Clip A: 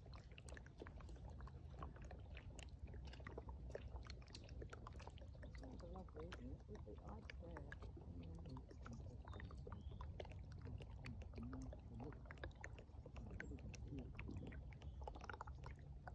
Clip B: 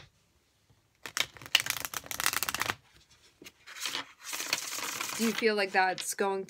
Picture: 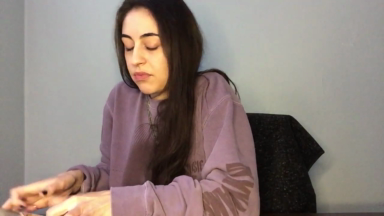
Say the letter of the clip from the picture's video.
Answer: B